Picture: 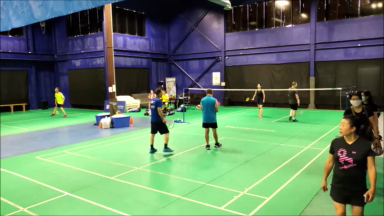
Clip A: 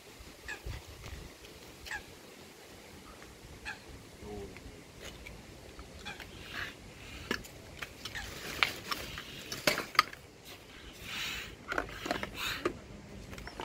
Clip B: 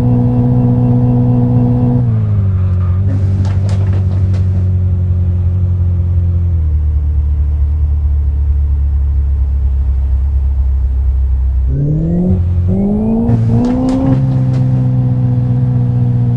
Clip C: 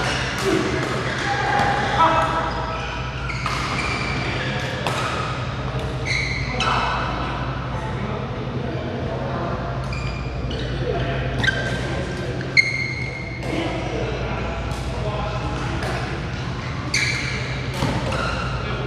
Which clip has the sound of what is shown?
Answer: C